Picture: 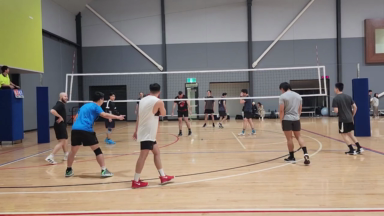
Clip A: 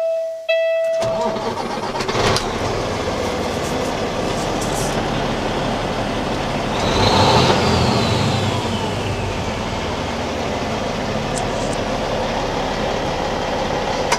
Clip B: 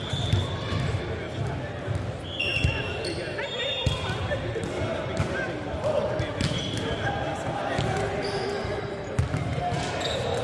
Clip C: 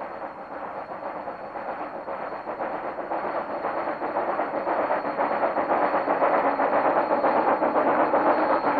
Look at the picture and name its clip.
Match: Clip B